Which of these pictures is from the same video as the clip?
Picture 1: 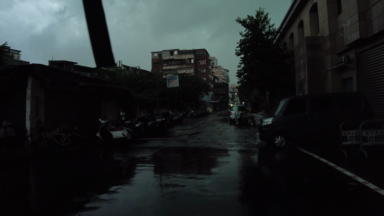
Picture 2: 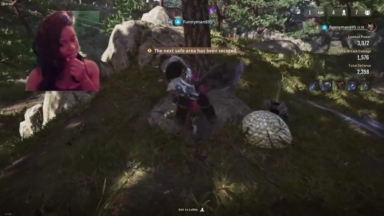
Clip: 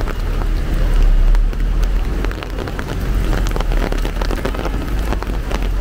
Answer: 1